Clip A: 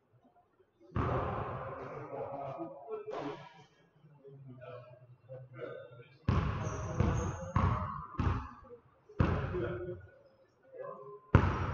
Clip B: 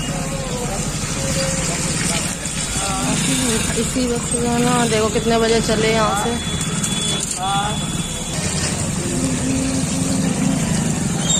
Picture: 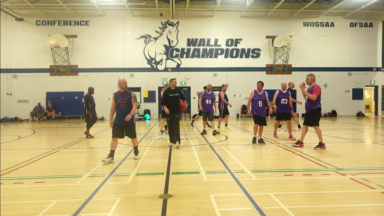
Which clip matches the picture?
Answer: A